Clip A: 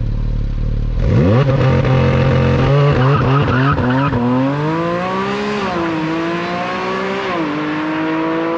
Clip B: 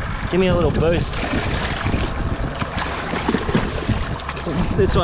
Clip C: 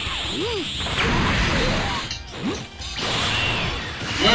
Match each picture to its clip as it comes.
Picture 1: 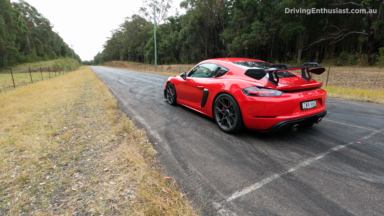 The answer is A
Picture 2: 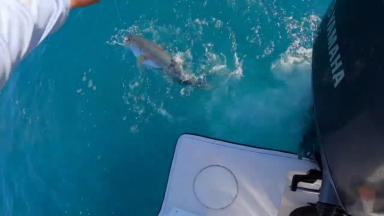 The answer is B